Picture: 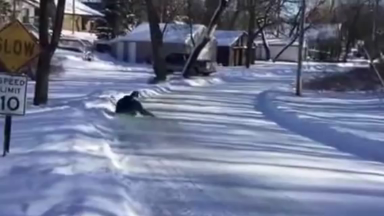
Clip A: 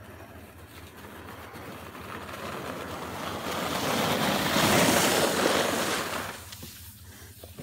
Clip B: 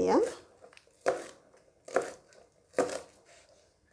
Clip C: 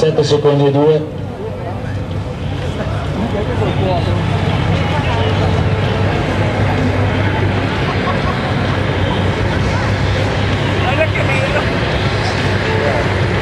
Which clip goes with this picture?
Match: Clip A